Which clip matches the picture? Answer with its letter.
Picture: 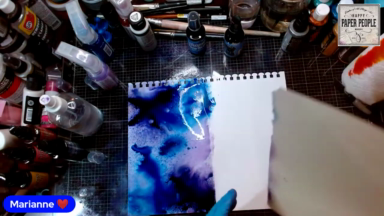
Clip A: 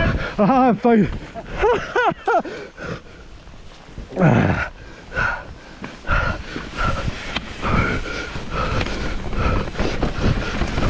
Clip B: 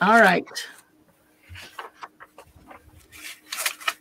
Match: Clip B